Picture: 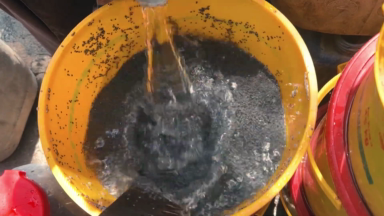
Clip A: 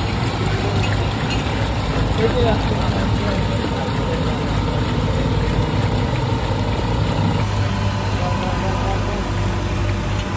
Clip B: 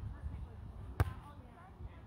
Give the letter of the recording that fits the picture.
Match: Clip A